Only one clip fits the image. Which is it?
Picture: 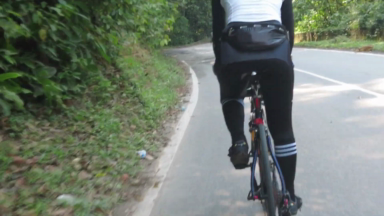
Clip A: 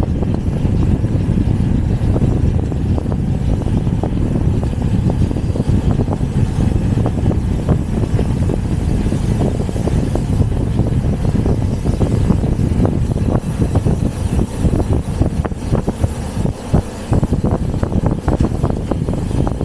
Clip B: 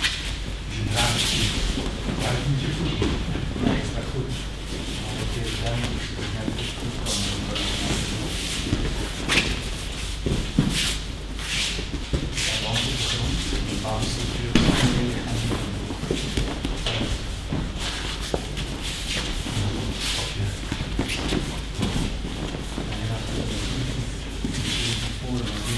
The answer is A